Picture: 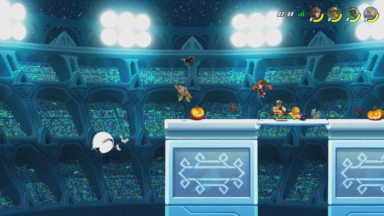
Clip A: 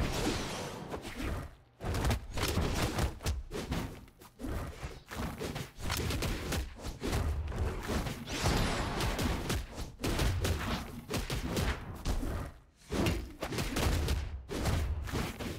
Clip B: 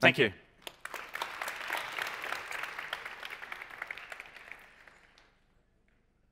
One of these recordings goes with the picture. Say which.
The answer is A